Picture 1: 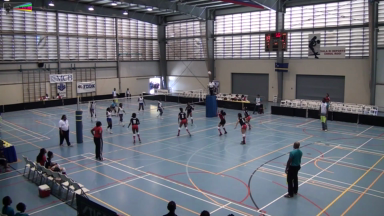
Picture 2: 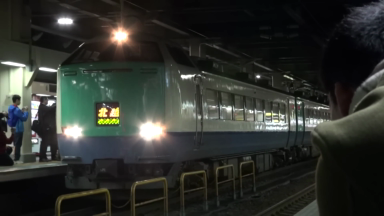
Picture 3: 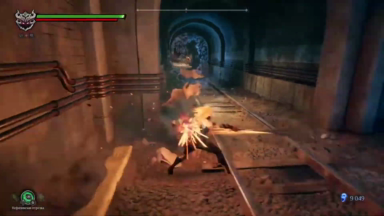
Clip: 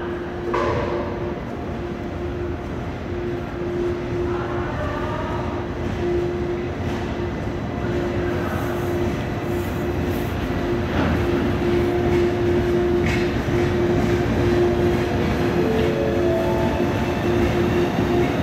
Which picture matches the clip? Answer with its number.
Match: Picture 2